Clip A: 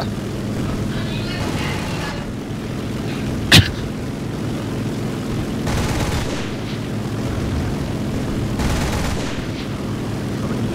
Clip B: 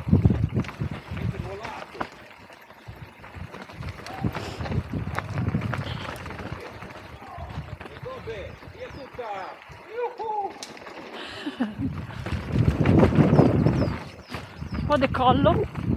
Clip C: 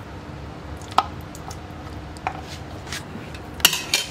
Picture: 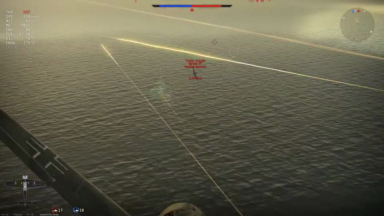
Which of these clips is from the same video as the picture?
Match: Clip A